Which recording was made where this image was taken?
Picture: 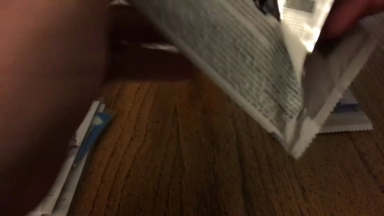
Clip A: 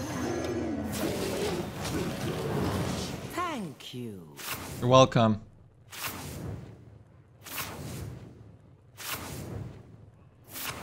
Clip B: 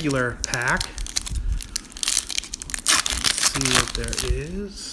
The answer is B